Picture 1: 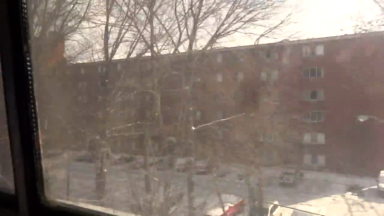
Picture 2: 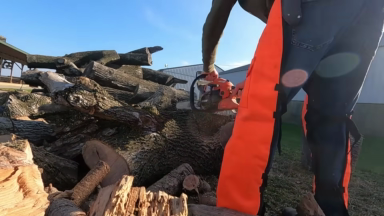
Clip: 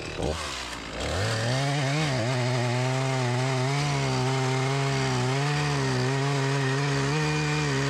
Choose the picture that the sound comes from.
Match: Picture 2